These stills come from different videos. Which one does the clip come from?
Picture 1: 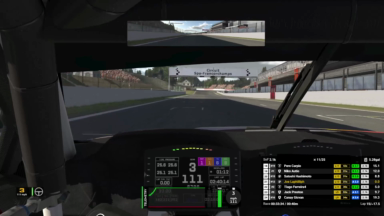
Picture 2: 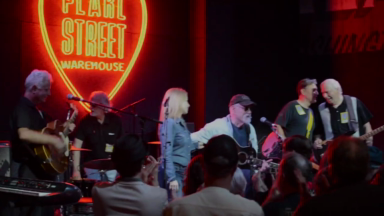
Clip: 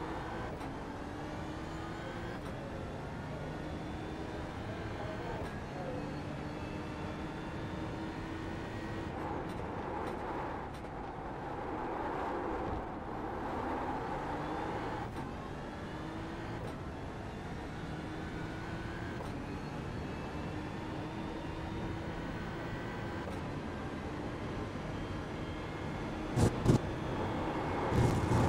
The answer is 1